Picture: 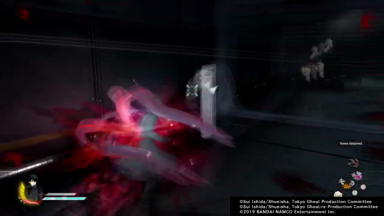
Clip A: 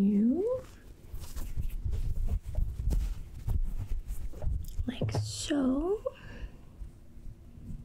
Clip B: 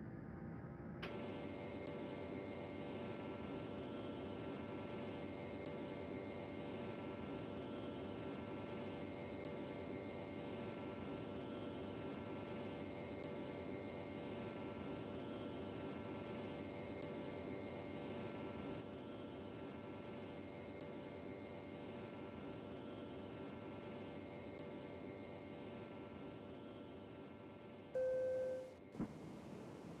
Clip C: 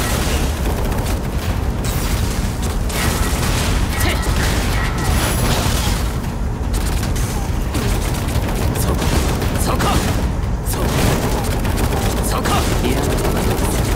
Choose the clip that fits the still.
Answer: C